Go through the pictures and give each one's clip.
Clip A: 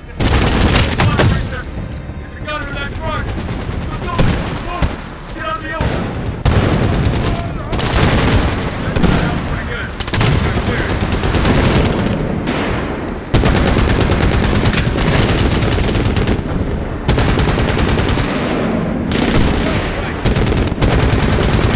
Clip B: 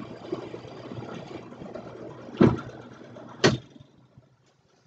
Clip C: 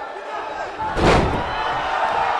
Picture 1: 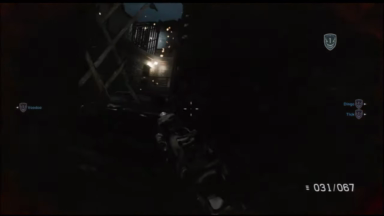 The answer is A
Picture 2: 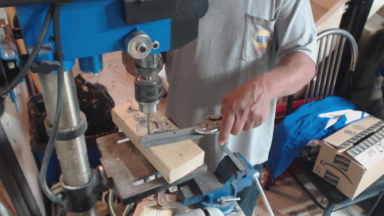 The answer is B